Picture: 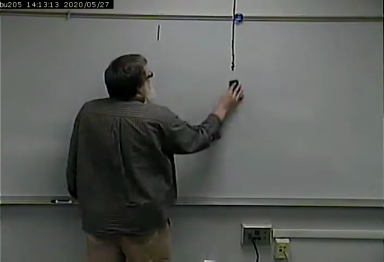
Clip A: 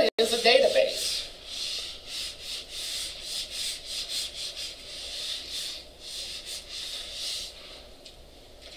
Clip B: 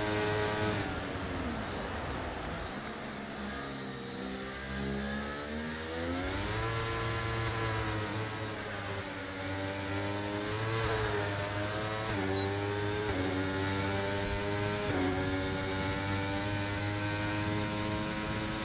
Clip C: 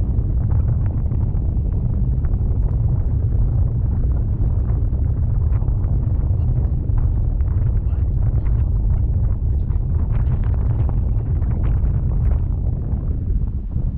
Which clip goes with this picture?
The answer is A